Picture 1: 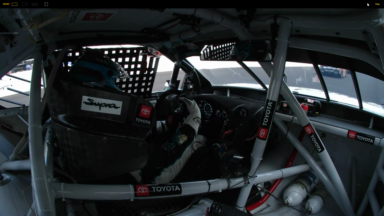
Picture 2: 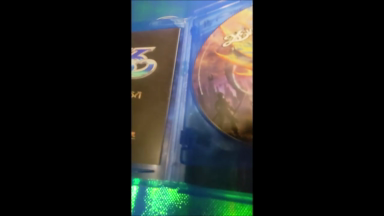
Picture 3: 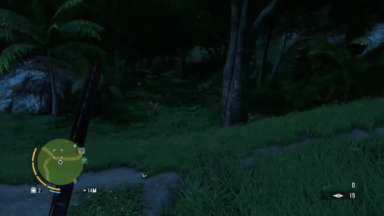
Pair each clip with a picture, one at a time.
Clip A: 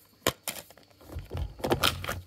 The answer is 2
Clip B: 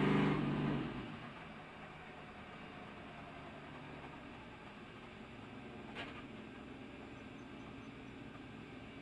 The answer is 1